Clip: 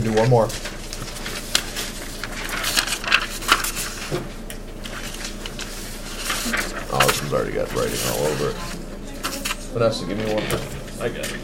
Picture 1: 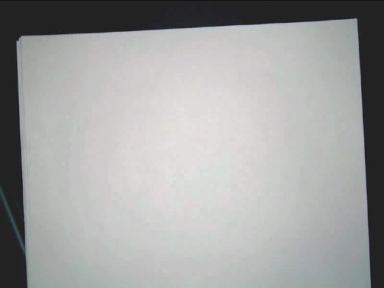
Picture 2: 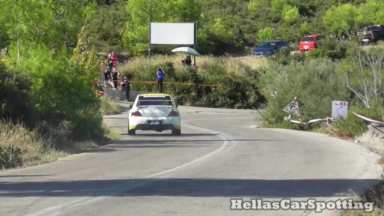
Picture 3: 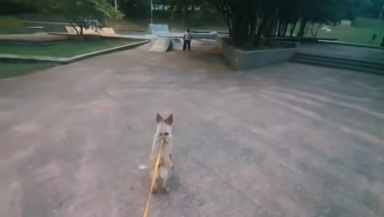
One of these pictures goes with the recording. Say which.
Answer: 1